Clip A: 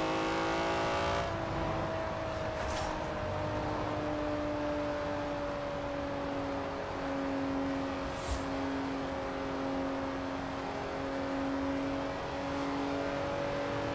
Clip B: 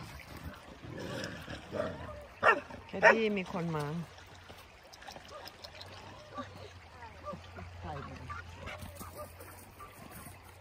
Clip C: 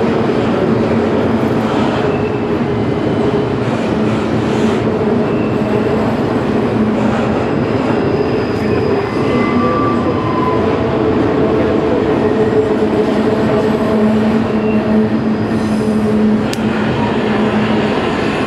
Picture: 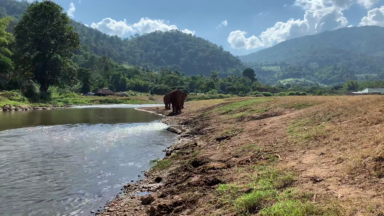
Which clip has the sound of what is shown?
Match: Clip B